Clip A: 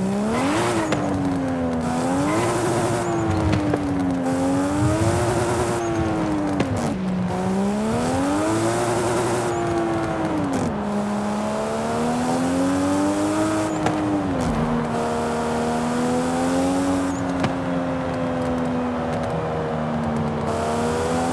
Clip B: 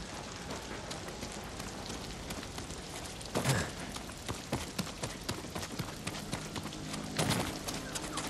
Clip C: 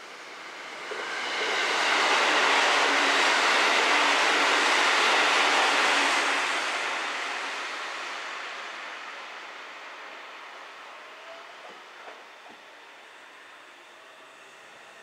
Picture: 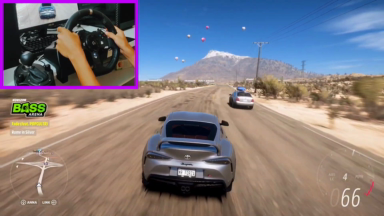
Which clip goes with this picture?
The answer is A